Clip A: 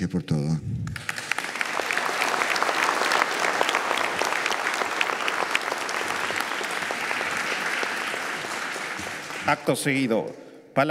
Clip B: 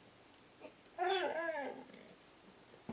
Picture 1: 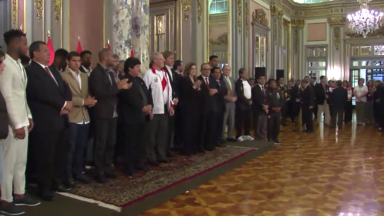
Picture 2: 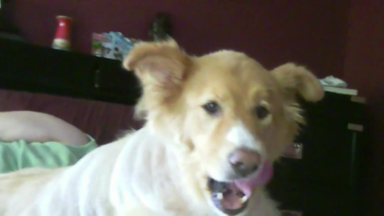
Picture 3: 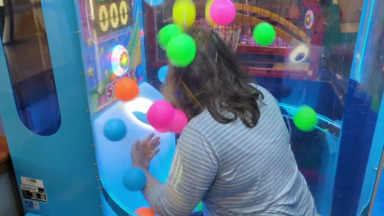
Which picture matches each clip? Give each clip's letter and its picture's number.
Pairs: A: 1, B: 2